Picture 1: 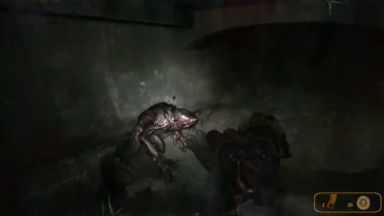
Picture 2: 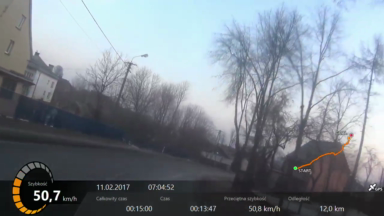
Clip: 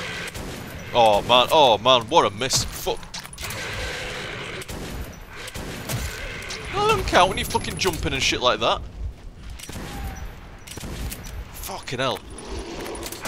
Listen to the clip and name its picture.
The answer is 1